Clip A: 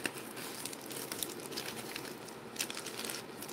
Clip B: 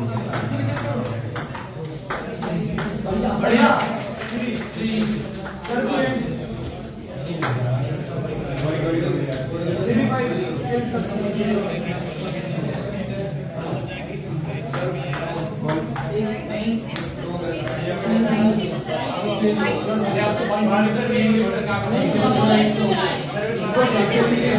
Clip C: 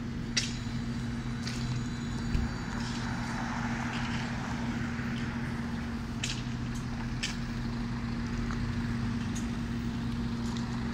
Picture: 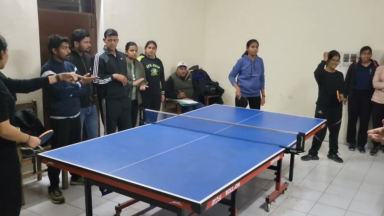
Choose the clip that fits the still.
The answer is B